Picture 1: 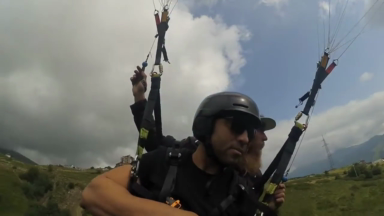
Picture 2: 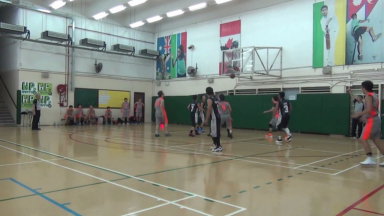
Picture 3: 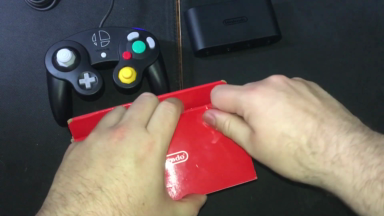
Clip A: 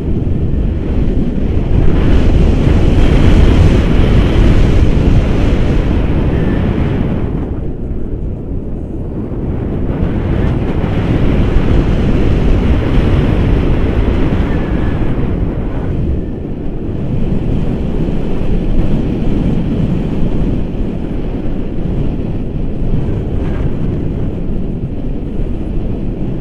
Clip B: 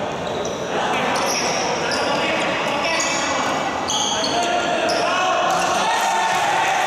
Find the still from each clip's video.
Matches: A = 1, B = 2